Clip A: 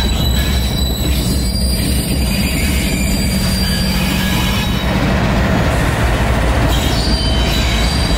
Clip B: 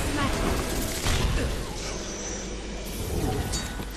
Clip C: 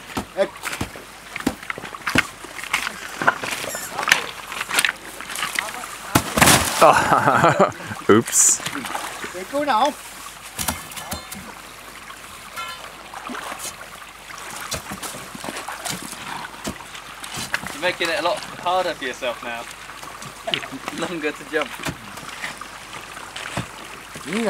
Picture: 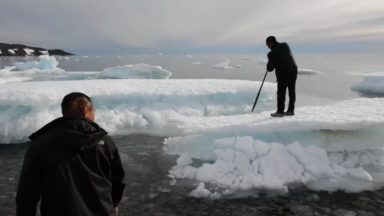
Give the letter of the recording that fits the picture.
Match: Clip C